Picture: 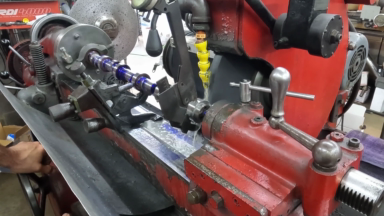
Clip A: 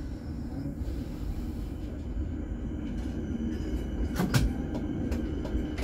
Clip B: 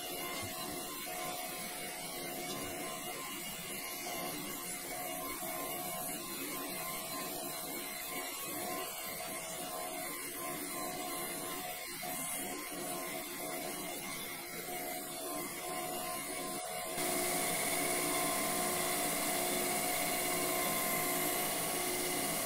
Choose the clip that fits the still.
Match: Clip B